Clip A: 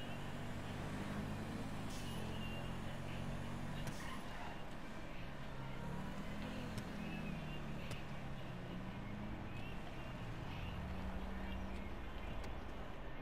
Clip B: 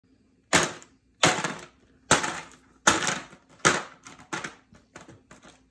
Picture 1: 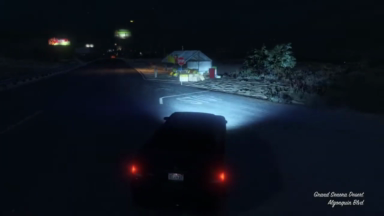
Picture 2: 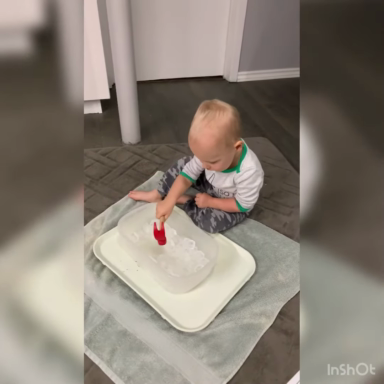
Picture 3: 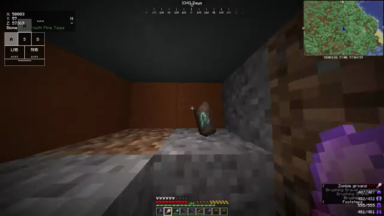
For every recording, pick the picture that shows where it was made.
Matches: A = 1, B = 2